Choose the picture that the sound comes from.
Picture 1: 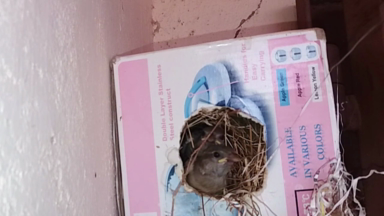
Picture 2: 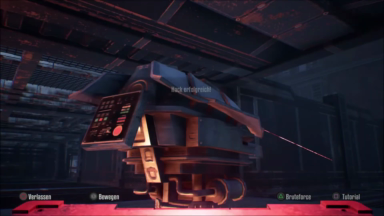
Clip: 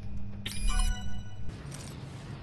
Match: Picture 2